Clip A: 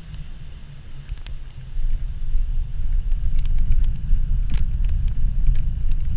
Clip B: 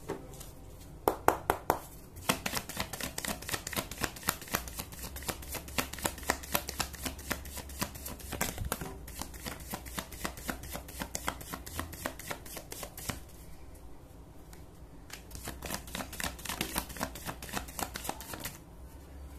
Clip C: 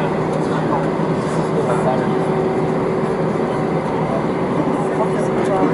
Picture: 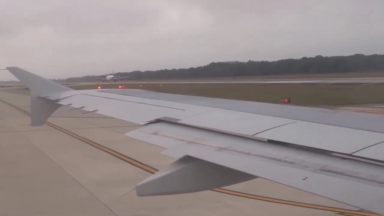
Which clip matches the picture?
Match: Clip C